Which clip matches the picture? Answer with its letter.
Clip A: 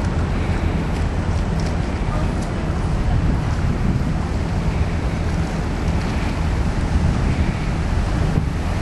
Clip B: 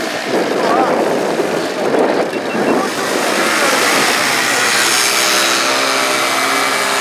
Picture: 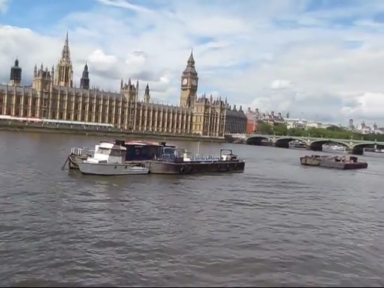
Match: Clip A